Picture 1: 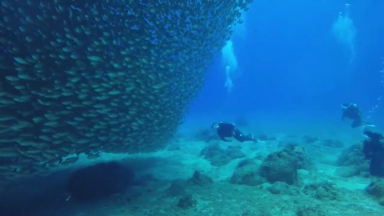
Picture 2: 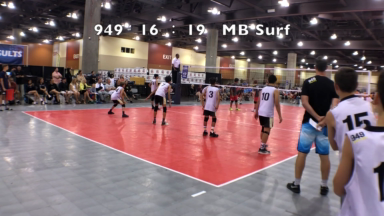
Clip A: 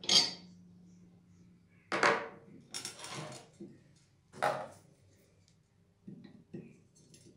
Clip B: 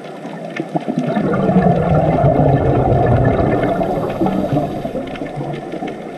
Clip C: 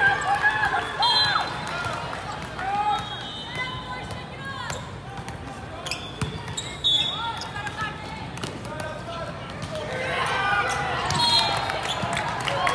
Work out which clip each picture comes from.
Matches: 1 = B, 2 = C